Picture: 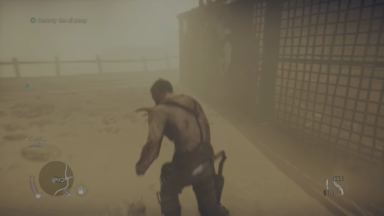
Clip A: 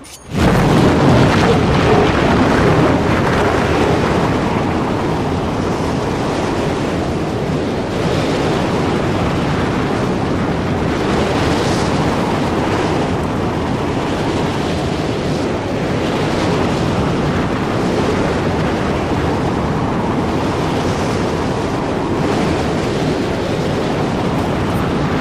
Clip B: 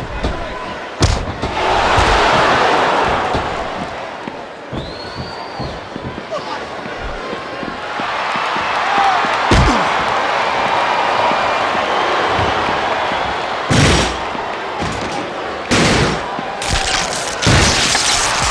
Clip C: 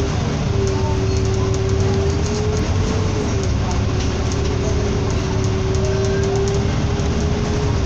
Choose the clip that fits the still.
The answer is A